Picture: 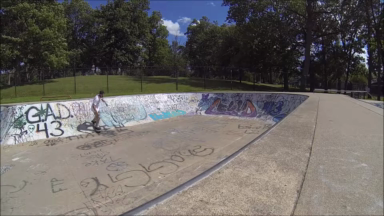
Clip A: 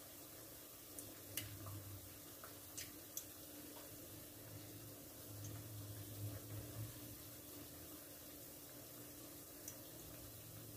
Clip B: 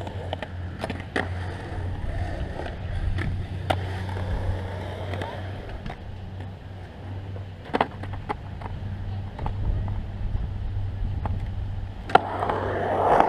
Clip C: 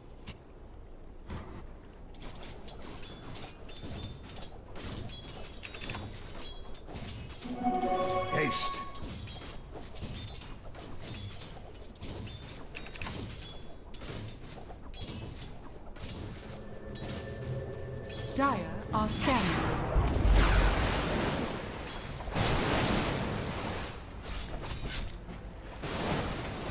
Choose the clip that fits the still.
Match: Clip B